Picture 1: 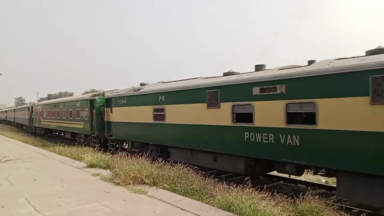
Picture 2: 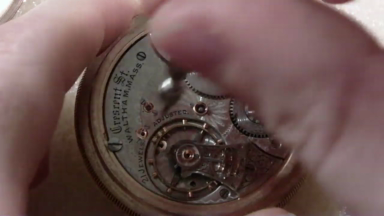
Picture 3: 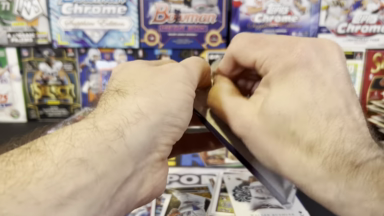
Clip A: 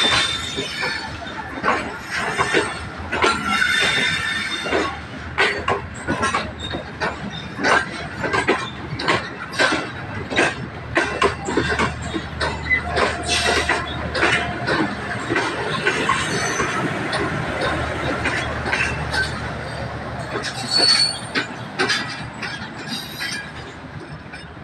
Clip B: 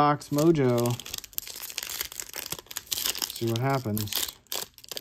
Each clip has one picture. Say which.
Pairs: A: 1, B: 3